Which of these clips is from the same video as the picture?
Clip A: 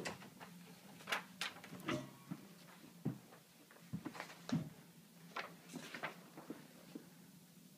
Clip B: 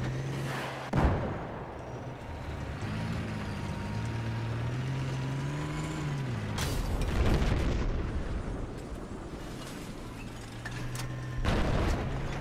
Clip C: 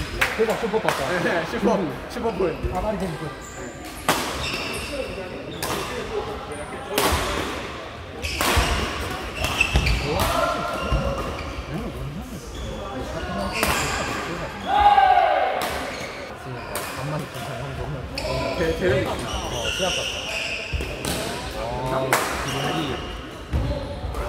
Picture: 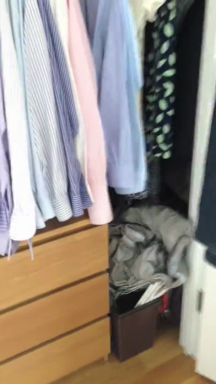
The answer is A